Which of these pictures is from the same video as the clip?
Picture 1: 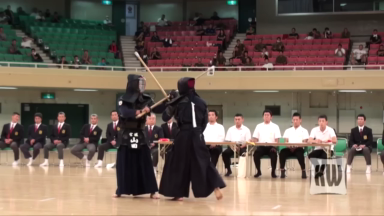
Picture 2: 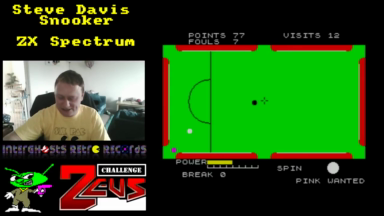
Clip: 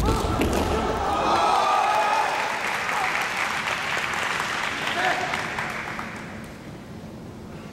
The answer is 1